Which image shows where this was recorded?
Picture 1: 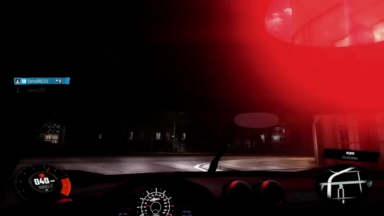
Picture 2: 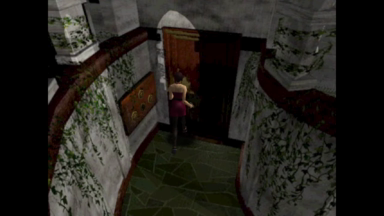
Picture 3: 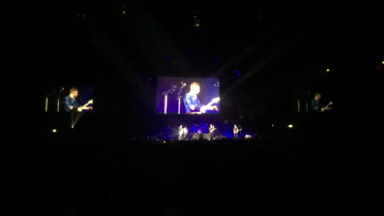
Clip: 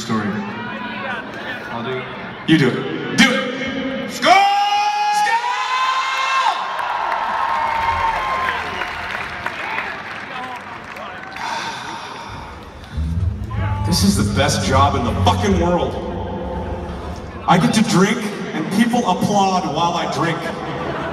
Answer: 3